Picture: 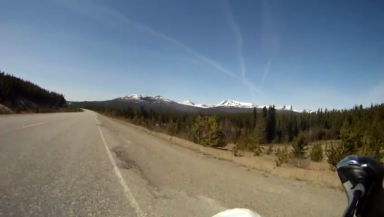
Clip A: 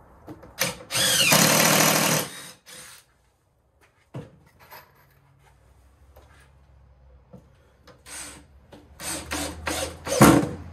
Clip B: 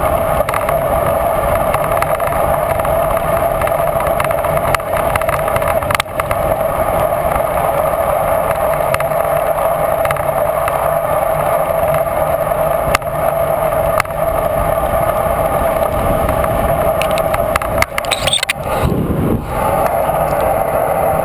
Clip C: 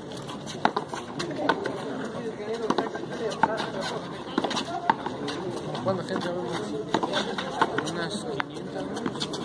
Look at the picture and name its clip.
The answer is B